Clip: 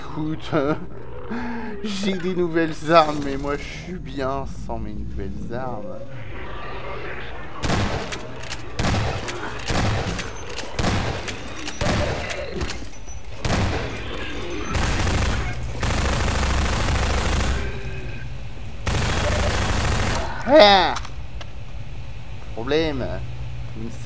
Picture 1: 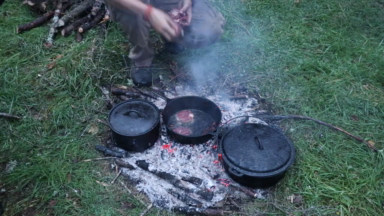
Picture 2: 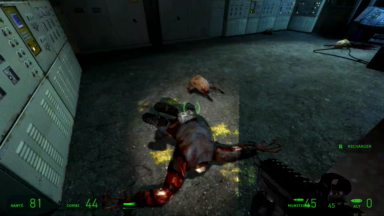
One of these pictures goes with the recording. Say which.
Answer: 2